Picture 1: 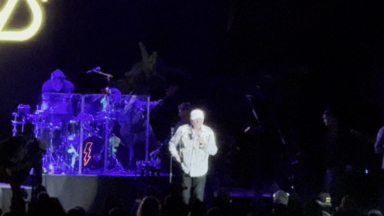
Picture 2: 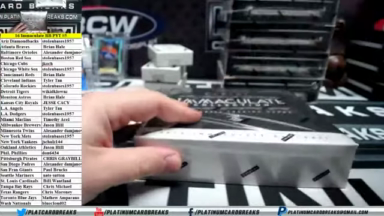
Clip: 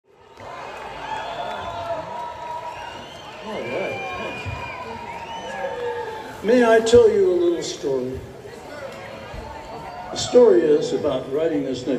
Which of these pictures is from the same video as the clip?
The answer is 1